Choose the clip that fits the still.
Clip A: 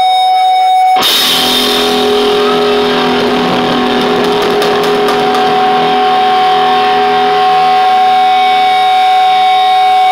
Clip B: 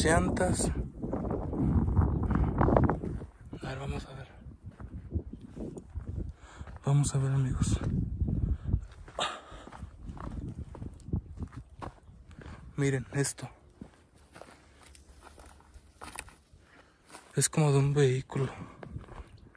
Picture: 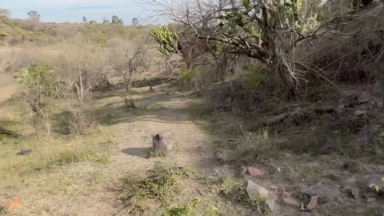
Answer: B